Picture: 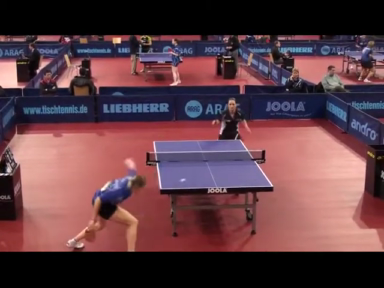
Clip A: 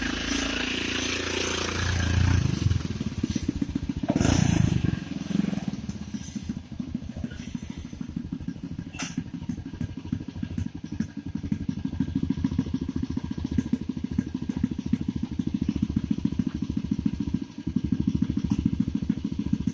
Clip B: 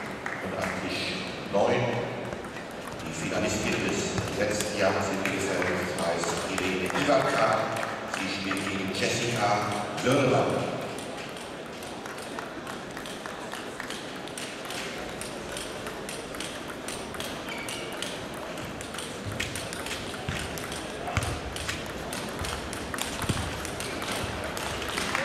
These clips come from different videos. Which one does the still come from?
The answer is B